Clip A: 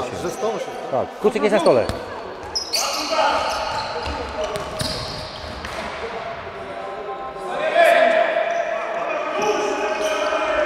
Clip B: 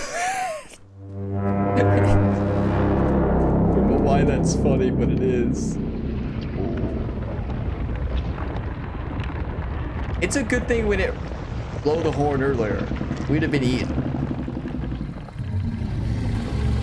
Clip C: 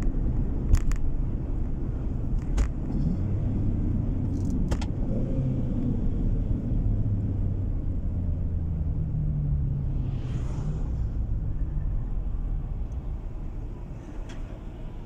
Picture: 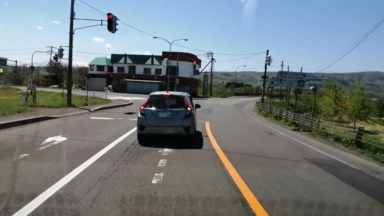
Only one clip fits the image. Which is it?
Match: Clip C